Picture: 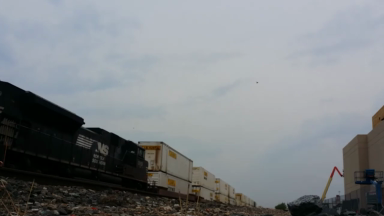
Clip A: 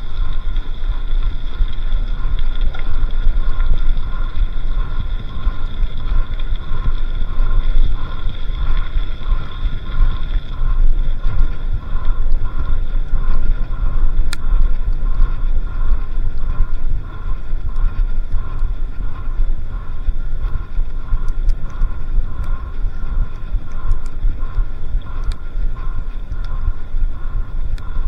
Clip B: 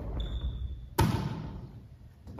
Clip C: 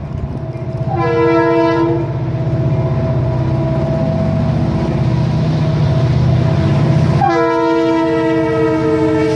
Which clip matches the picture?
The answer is C